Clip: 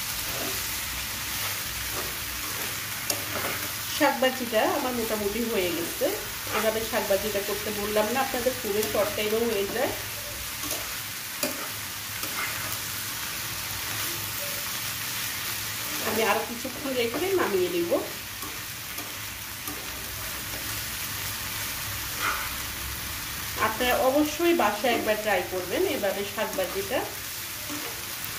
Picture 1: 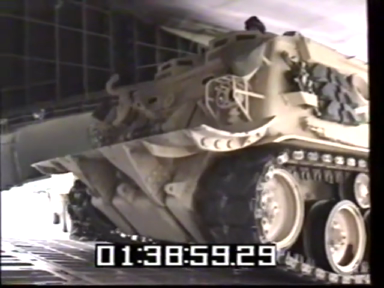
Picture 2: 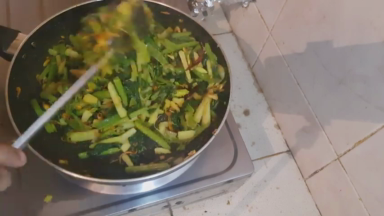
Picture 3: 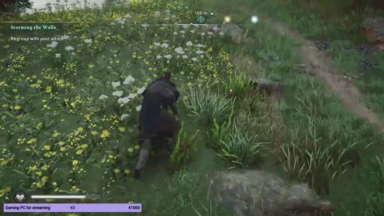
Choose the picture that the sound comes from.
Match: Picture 2